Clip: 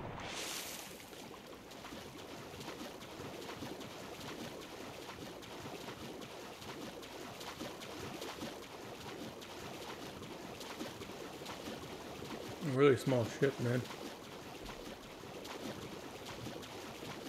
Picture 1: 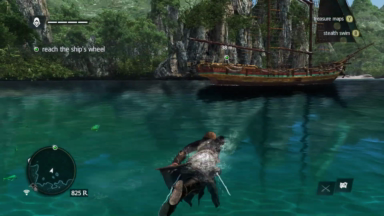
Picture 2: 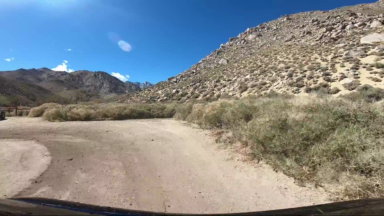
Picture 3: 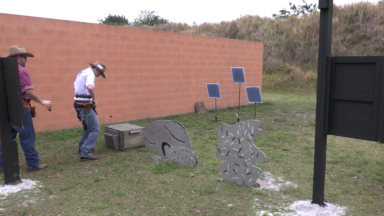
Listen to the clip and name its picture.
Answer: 1